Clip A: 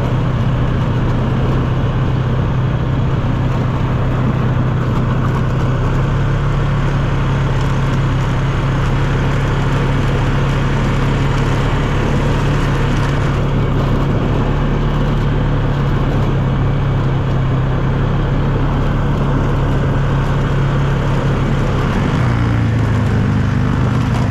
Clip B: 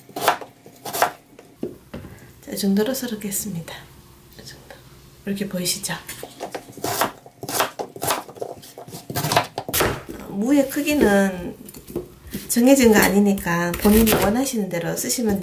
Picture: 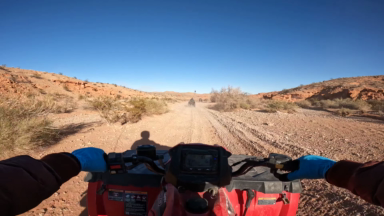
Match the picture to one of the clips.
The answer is A